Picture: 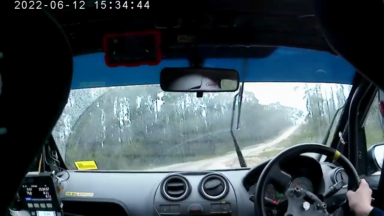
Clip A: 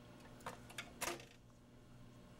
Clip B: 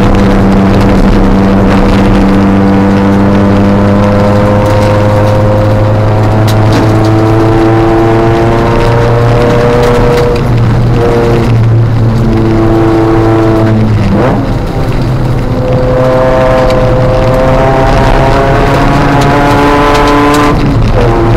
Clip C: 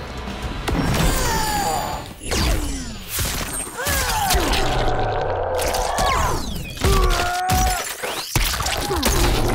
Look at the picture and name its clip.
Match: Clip B